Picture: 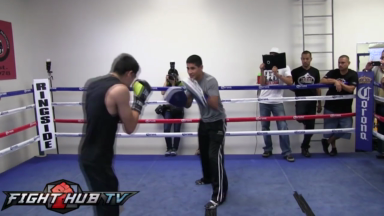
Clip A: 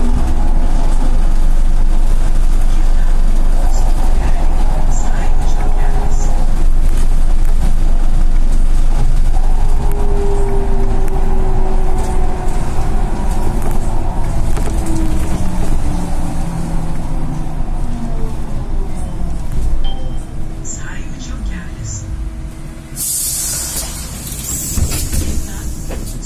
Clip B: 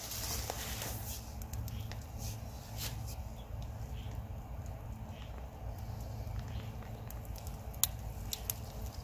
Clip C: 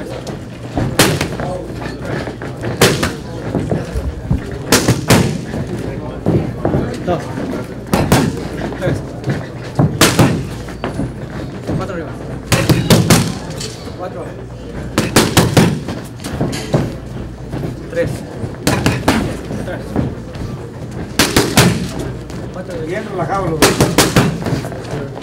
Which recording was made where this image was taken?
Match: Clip C